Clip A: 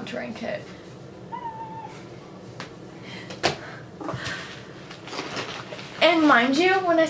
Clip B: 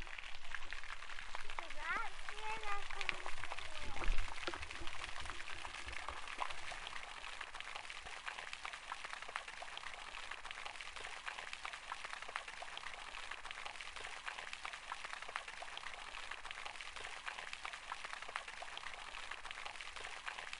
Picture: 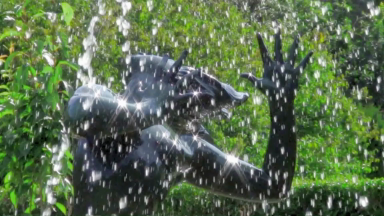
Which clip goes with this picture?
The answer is B